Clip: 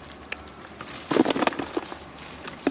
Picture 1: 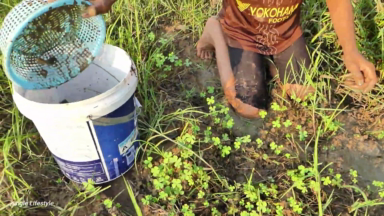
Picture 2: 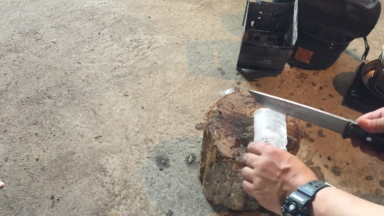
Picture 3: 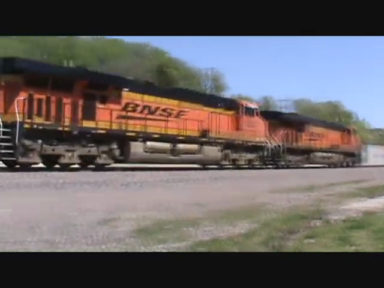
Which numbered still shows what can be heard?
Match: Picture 1